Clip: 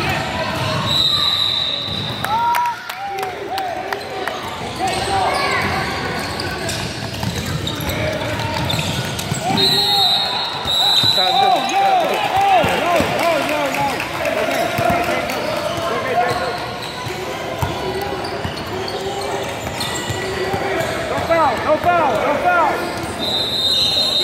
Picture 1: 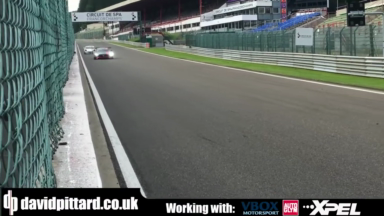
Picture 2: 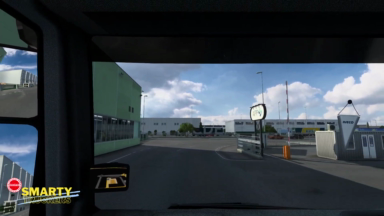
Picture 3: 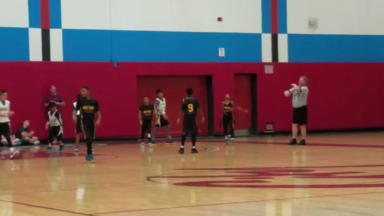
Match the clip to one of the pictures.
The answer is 3